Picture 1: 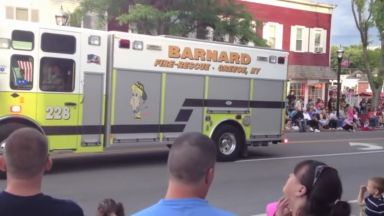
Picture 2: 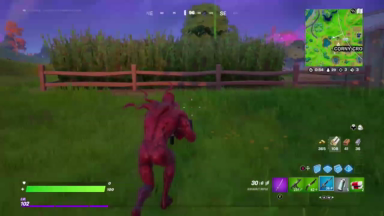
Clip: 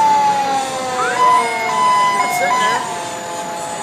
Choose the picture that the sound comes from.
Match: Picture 1